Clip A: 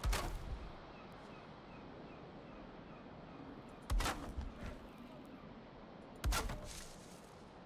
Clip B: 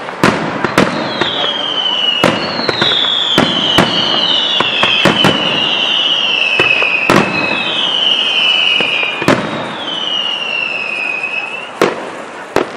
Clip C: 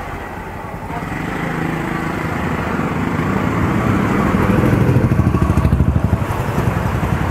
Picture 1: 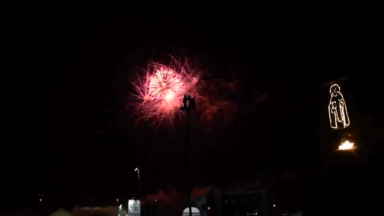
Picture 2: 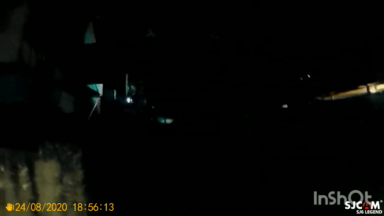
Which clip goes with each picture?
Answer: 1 B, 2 C